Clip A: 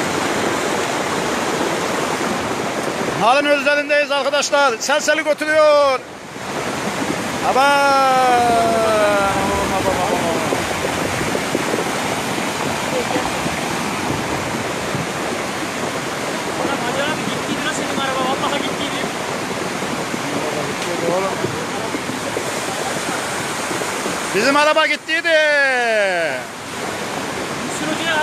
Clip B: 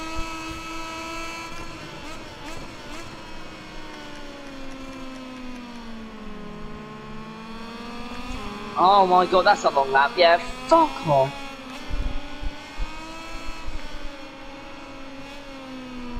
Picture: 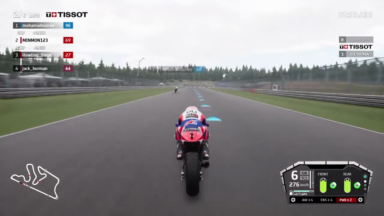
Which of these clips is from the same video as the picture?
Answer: B